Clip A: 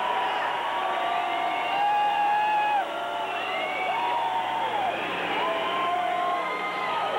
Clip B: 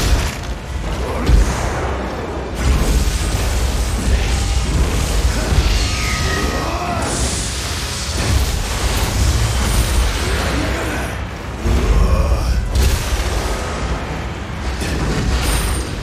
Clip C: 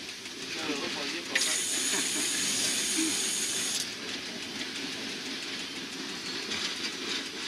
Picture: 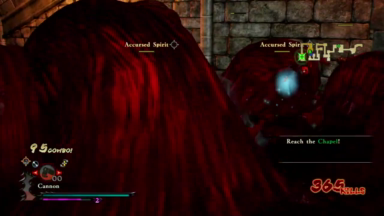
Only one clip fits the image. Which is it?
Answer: B